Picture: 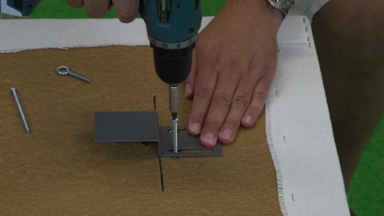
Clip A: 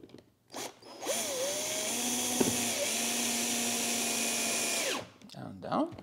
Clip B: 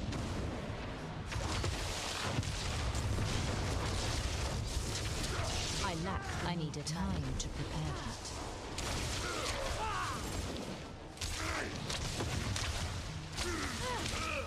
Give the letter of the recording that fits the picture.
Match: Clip A